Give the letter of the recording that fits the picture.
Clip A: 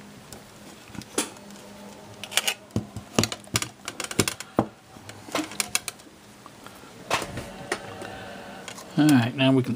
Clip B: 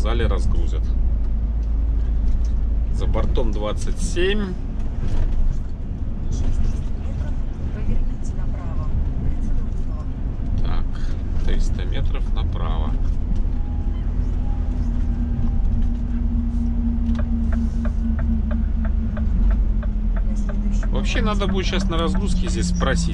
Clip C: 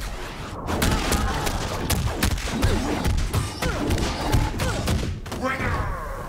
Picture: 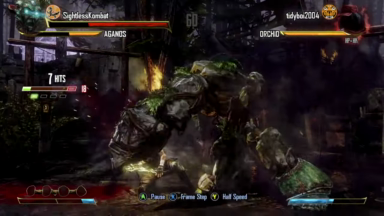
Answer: C